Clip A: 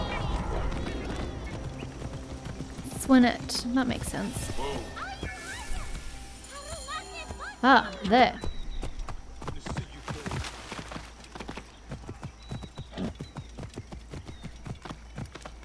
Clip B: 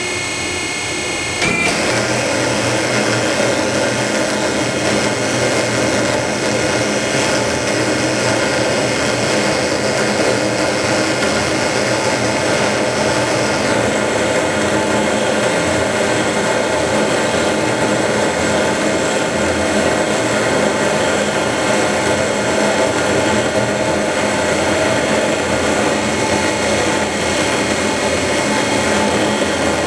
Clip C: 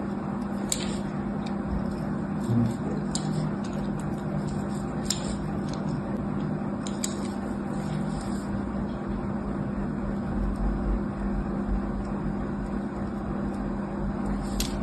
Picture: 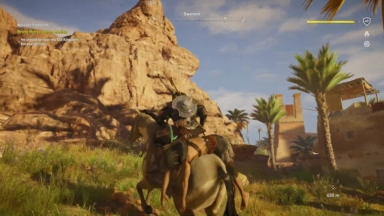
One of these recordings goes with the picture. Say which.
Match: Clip A